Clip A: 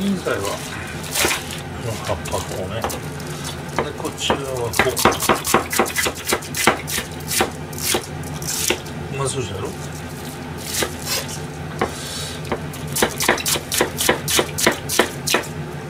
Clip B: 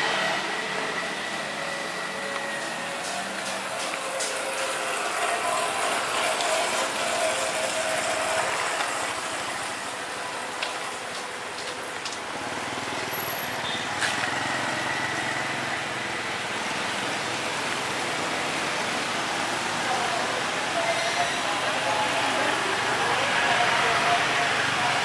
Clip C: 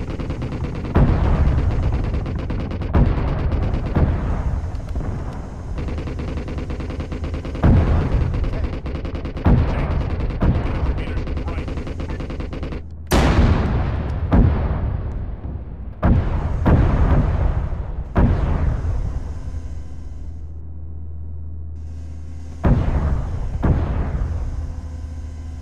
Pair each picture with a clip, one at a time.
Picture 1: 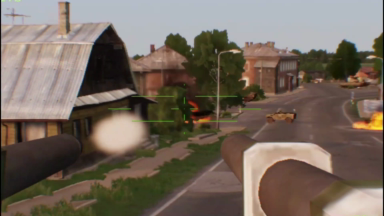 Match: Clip C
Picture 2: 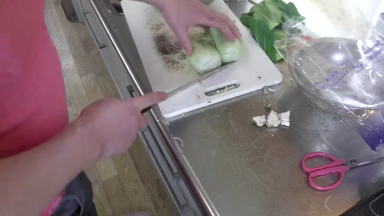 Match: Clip A